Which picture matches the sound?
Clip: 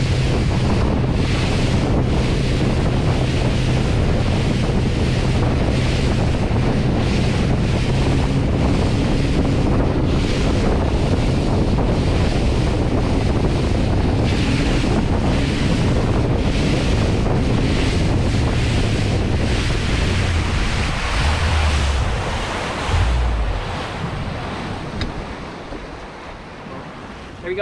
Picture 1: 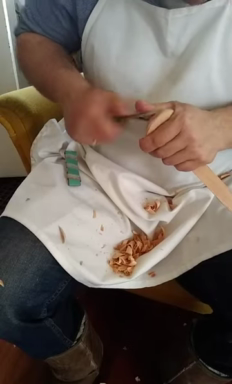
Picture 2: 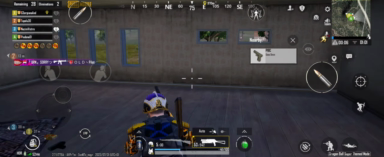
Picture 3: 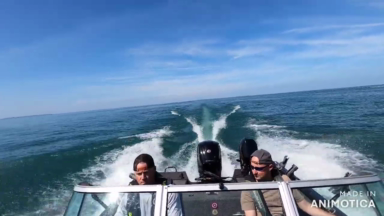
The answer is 3